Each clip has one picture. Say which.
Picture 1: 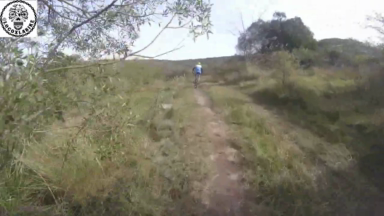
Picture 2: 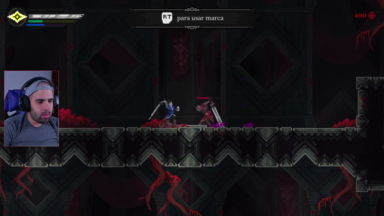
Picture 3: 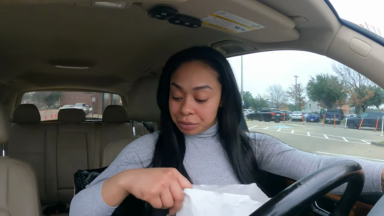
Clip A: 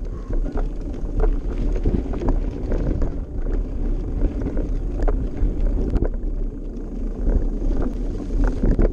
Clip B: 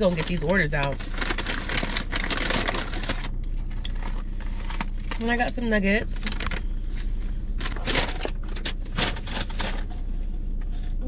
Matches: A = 1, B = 3